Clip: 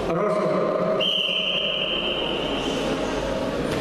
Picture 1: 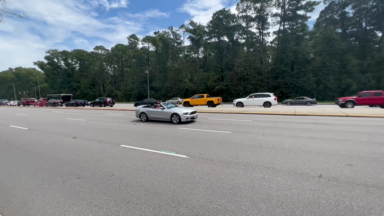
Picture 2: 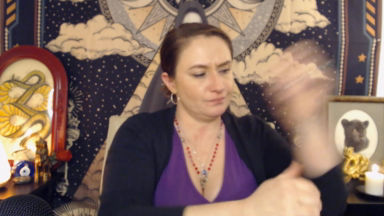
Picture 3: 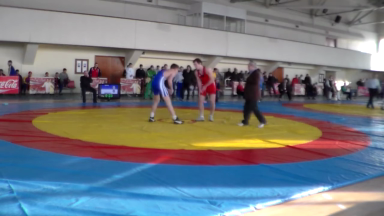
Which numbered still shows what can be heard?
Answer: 3